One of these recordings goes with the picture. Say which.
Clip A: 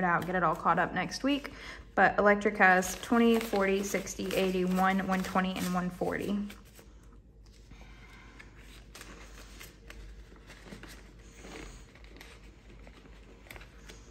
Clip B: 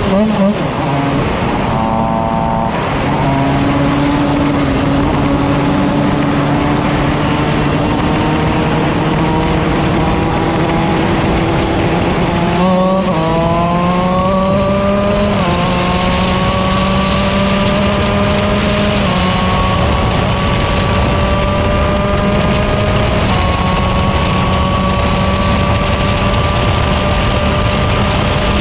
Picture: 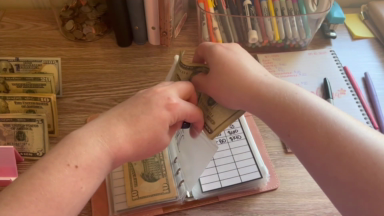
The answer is A